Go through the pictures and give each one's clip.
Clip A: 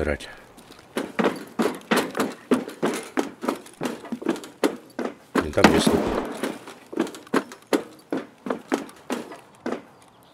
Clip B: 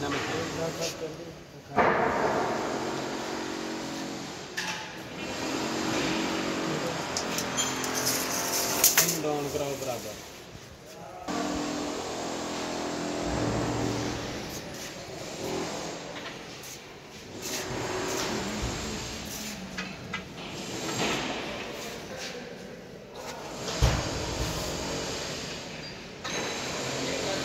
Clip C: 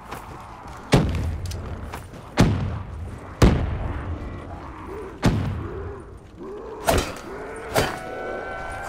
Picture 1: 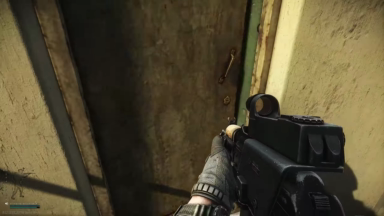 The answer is A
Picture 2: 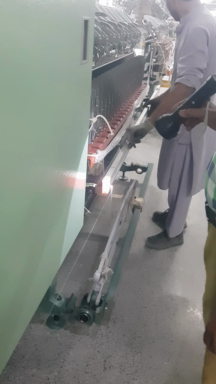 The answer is B